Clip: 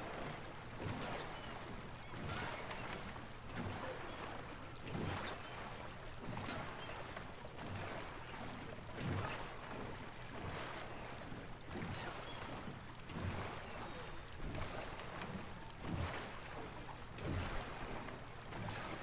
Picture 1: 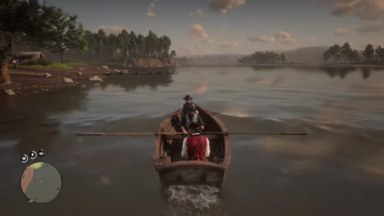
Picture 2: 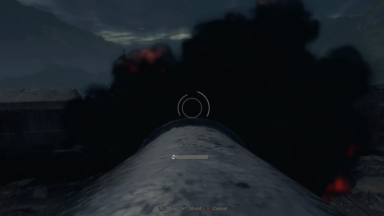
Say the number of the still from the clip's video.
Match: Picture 1